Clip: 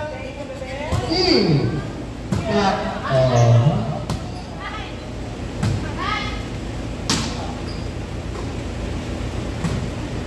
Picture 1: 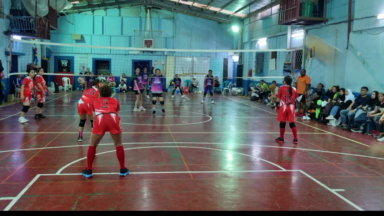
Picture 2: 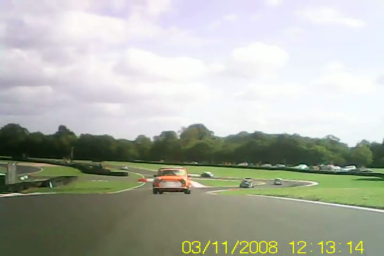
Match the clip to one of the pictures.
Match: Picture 1